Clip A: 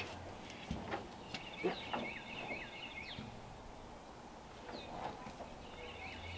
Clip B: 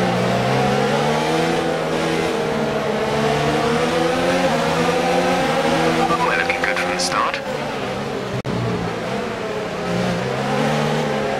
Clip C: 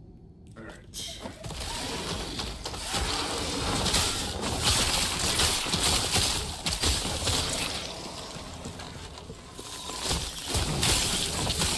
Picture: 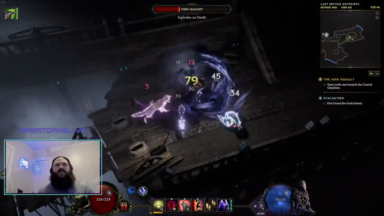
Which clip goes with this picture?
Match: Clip C